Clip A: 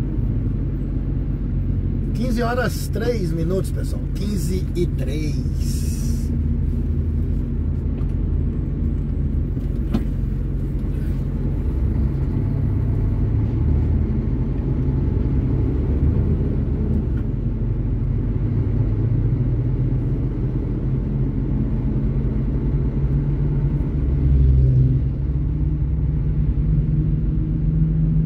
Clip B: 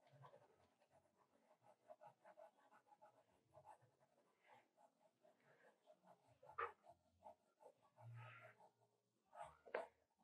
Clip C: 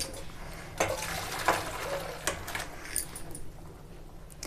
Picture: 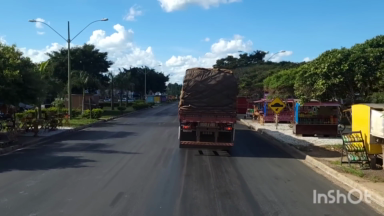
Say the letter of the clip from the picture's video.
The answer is A